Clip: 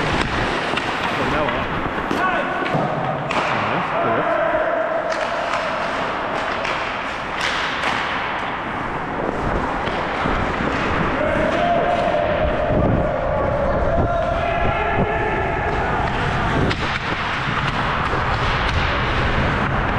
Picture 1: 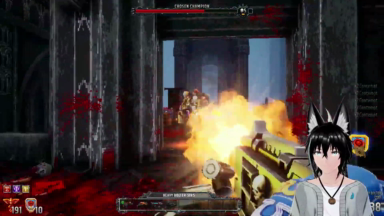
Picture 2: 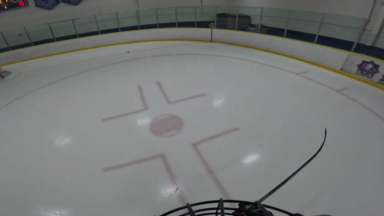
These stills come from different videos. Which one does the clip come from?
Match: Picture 2